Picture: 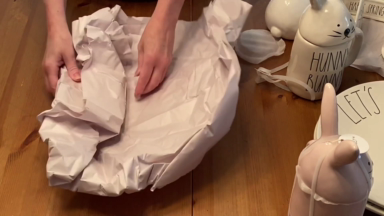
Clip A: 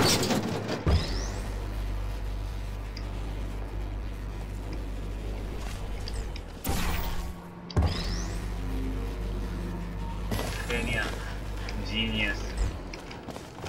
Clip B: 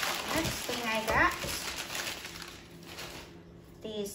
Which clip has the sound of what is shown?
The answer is B